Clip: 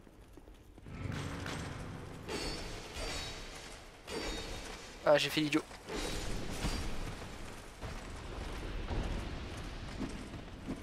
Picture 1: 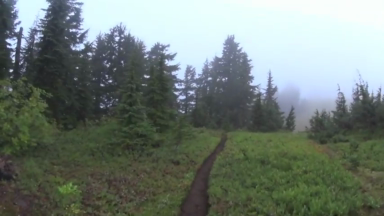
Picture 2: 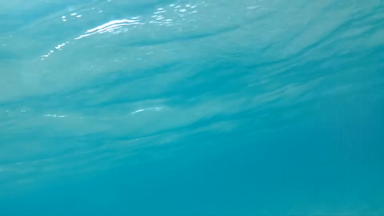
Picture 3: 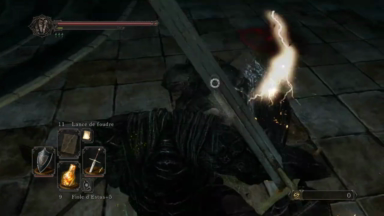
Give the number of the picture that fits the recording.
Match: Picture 3